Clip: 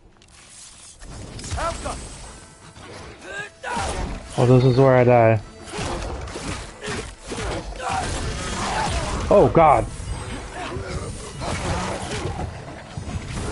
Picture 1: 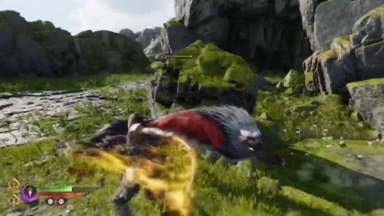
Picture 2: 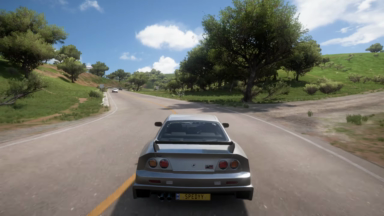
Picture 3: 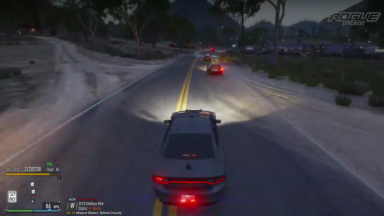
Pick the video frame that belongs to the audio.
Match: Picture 1